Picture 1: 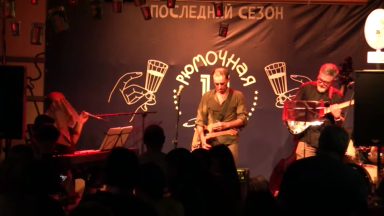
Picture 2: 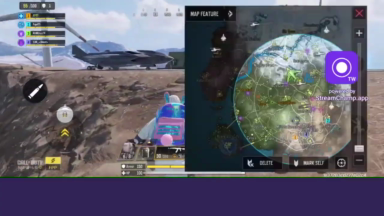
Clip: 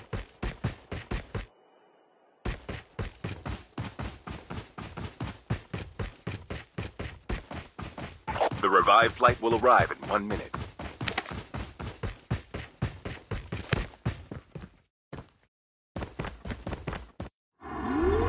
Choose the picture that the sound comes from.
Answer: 2